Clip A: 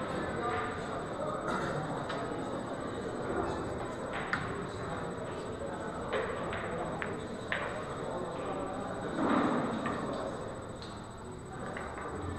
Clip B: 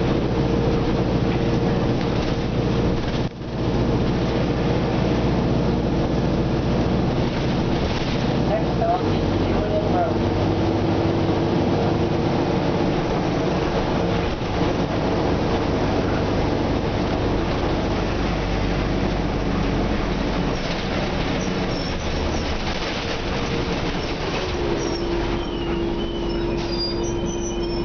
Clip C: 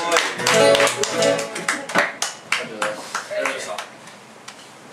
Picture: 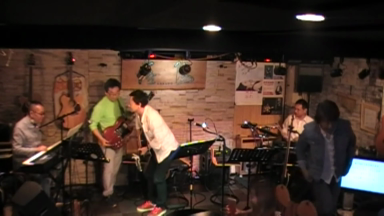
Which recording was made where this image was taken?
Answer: C